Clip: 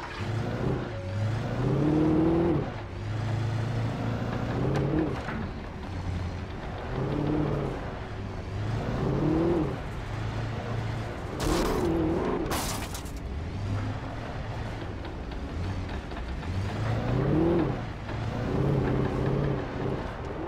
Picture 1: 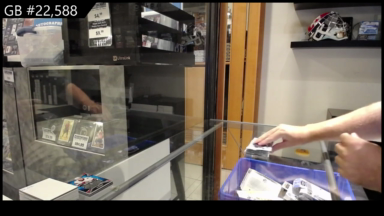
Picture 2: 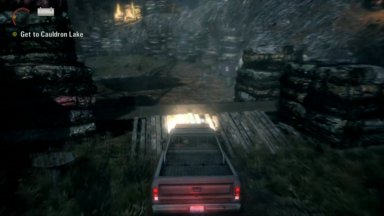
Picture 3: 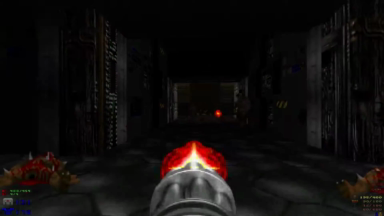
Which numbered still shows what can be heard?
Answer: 2